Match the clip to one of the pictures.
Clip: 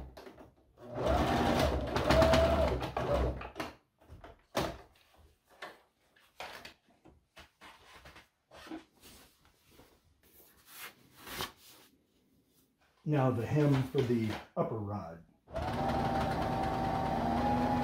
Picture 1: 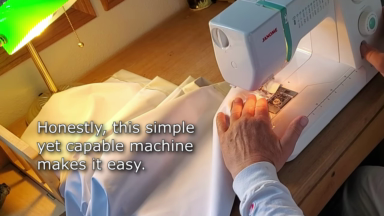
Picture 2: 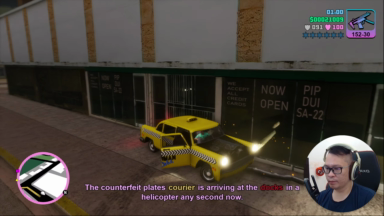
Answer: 1